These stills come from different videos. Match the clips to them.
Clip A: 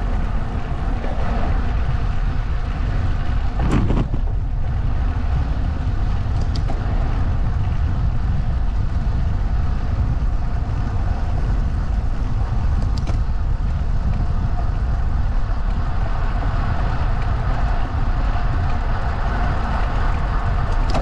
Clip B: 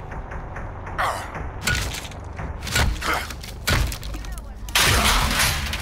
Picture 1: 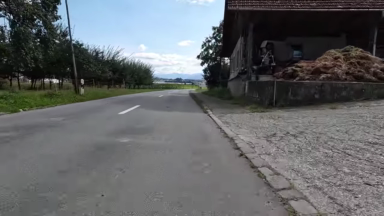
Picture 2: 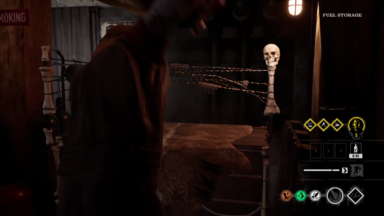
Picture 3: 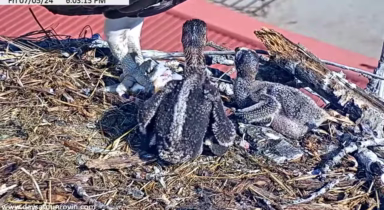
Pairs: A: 1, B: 2